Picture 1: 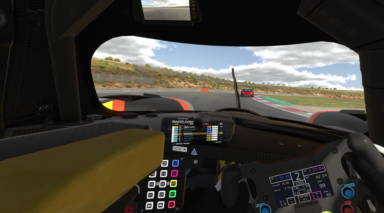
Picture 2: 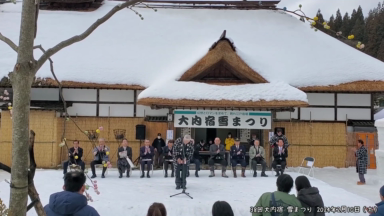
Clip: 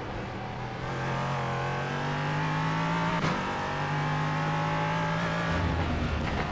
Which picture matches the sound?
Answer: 1